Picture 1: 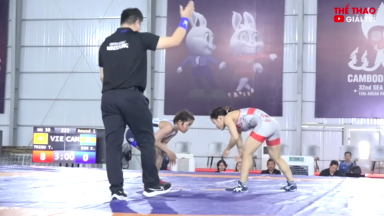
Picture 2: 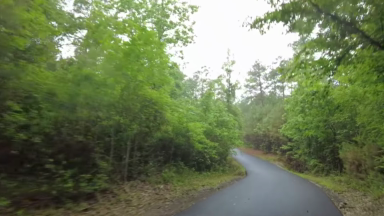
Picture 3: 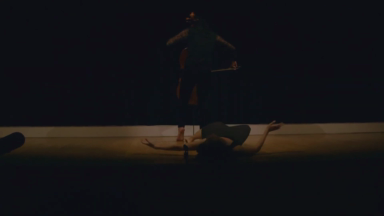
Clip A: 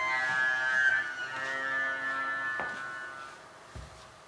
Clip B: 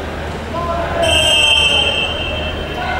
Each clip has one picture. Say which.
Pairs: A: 3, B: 1